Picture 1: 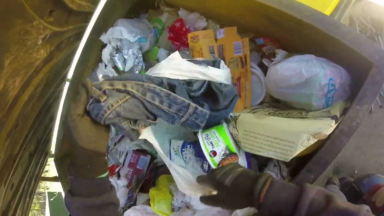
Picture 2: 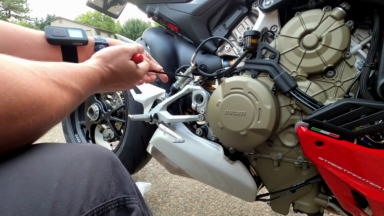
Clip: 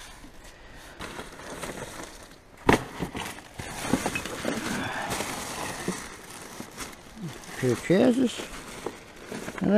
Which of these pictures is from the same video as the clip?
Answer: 1